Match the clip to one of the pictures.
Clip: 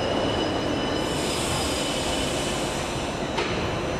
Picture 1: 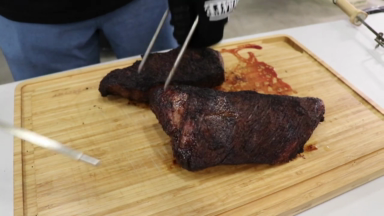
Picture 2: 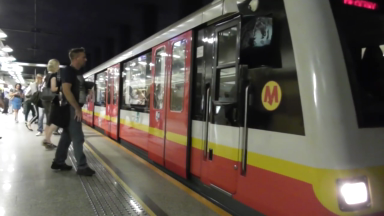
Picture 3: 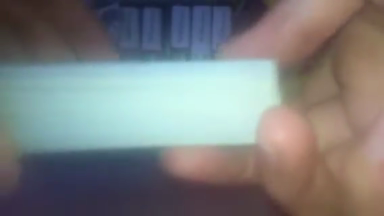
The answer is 2